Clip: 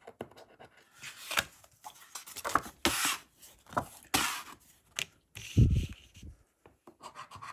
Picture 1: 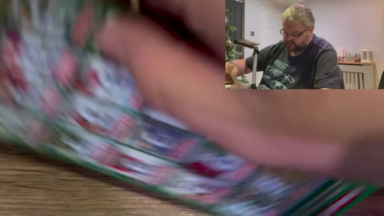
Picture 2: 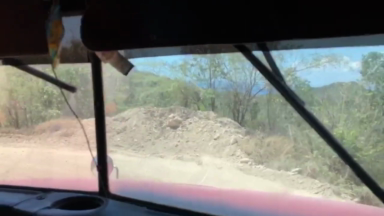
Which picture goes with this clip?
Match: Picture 1